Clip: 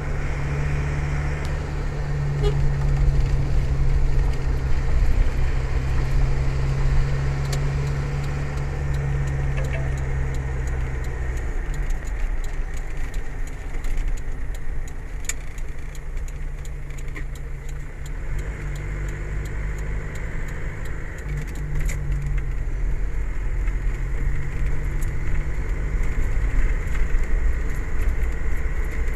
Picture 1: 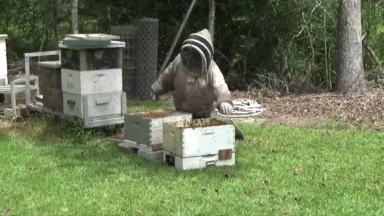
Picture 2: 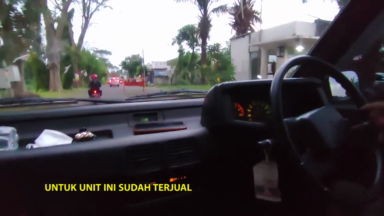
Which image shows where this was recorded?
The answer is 2